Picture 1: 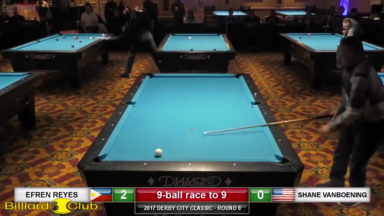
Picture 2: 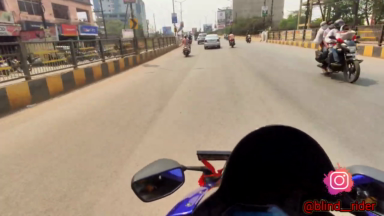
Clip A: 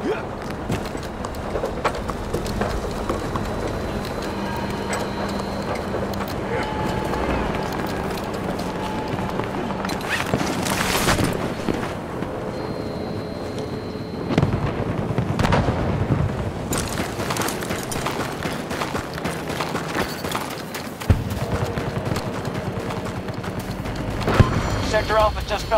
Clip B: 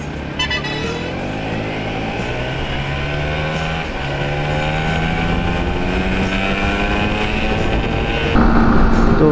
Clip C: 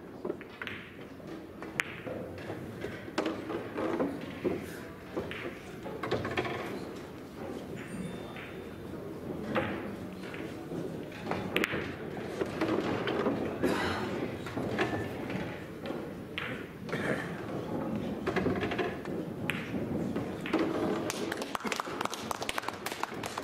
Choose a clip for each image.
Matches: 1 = C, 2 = B